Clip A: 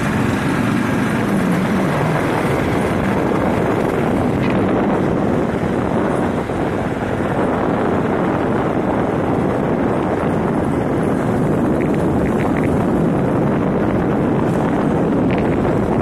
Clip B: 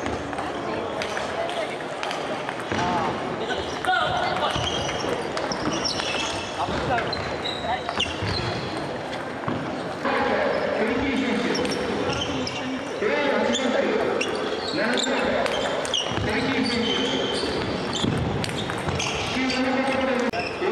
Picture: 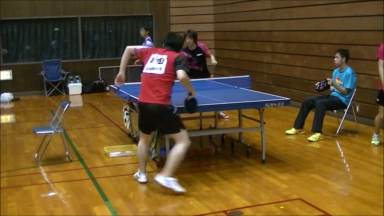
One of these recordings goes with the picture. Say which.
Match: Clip B